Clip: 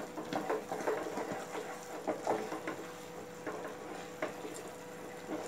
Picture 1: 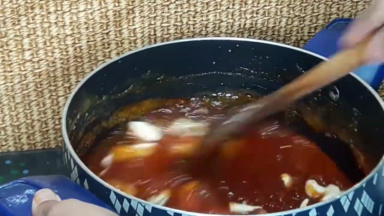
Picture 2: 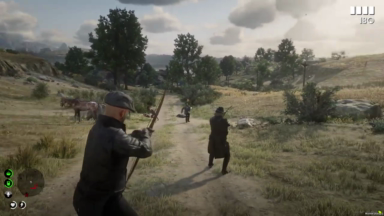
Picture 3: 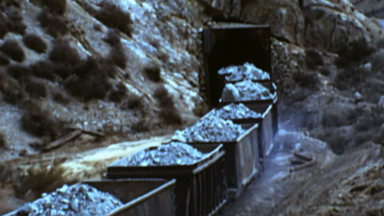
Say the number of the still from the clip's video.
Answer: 1